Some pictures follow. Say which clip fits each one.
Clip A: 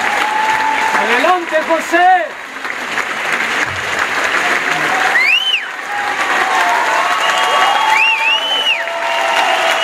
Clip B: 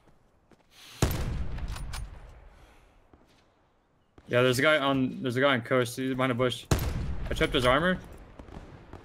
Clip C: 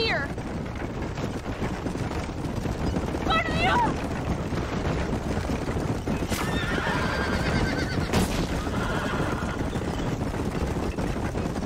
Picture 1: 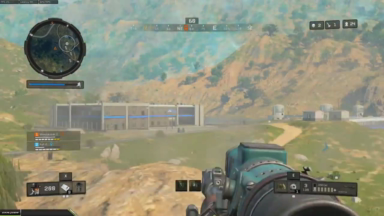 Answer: B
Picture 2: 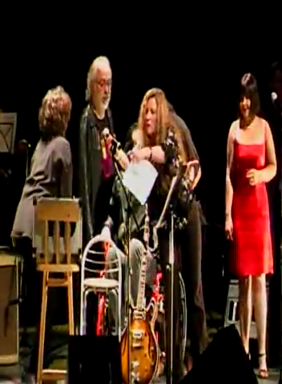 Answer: A